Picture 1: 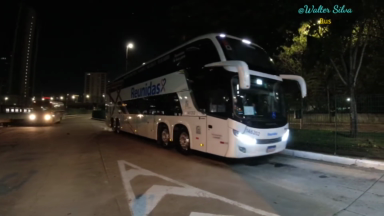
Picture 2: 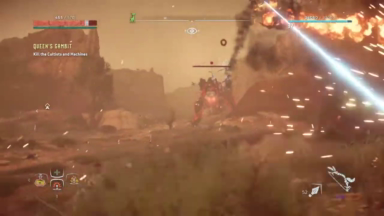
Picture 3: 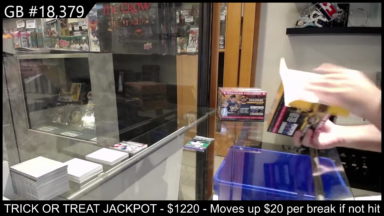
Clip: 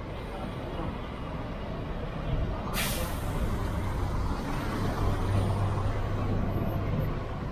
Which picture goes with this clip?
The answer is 1